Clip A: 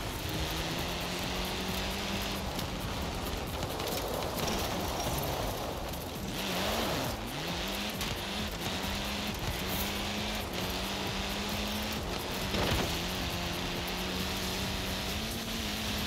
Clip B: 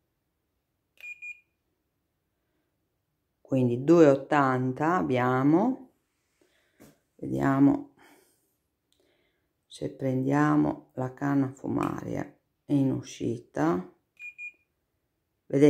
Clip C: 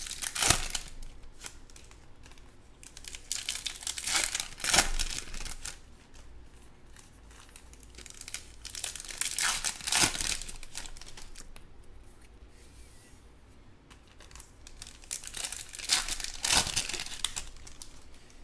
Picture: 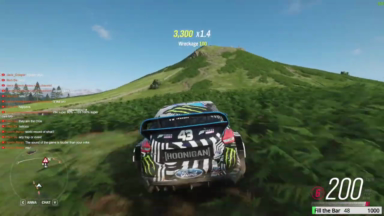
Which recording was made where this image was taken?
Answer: A